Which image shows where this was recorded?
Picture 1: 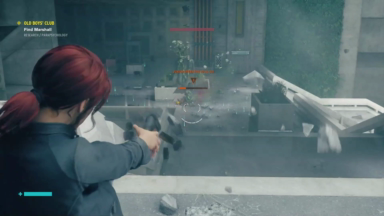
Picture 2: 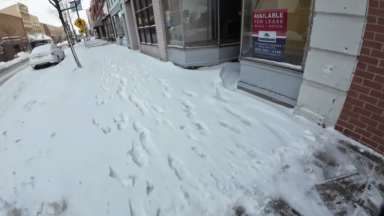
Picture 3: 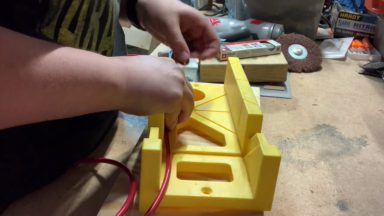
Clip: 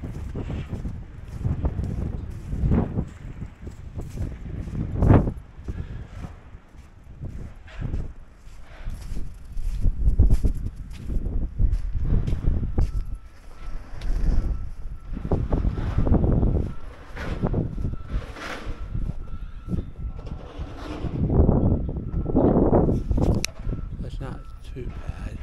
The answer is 2